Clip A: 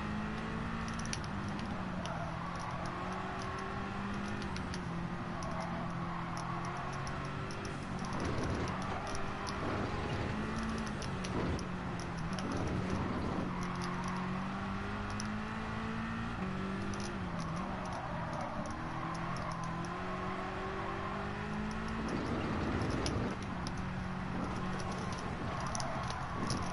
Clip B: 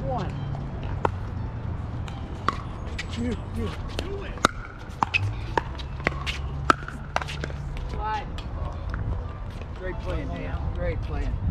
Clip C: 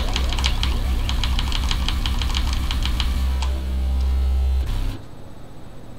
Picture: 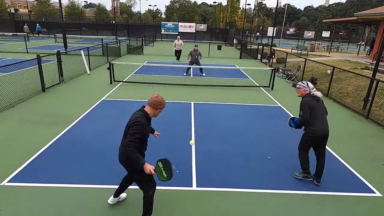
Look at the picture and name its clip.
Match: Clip B